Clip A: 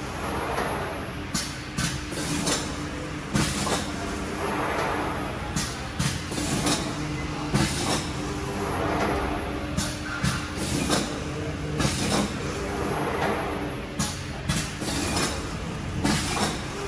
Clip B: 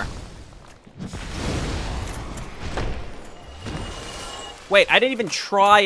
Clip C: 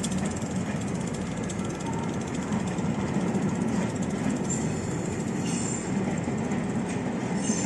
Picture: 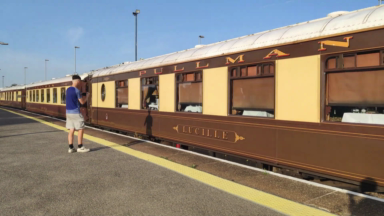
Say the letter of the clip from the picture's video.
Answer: C